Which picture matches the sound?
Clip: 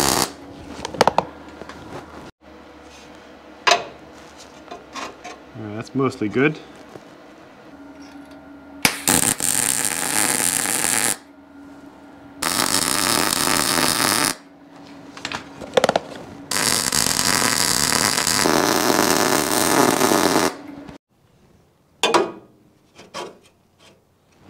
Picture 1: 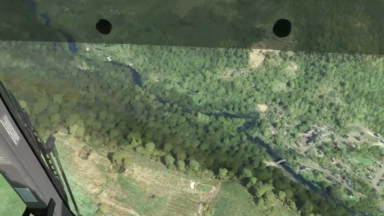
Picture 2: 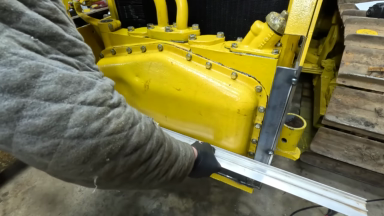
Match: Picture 2